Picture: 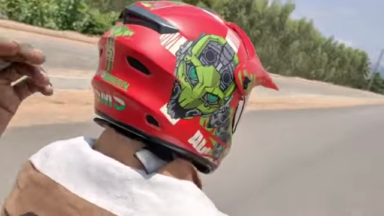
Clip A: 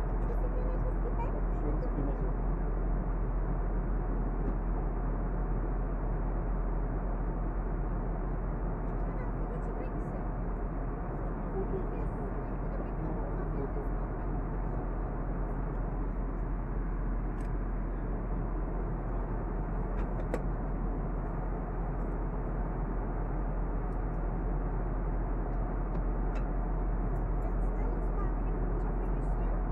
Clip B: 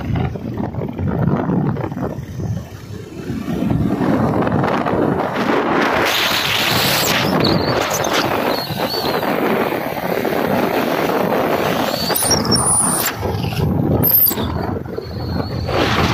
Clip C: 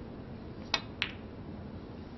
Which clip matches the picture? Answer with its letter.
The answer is B